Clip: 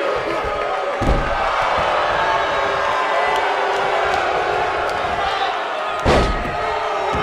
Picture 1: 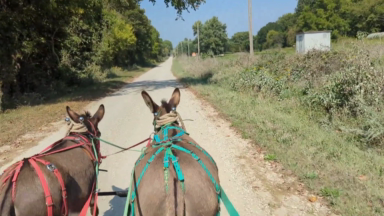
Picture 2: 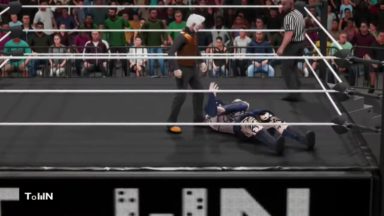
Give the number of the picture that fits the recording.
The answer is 2